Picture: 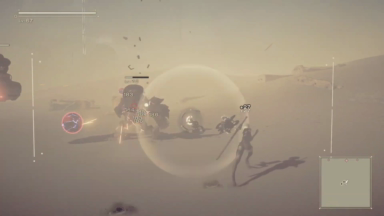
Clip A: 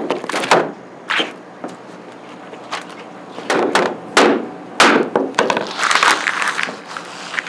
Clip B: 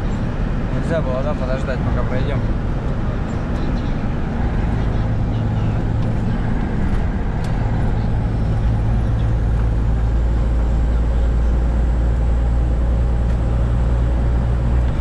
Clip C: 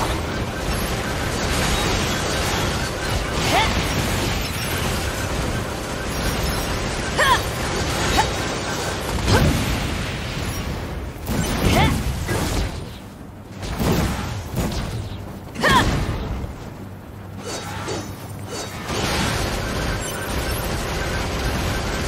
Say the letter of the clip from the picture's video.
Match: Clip C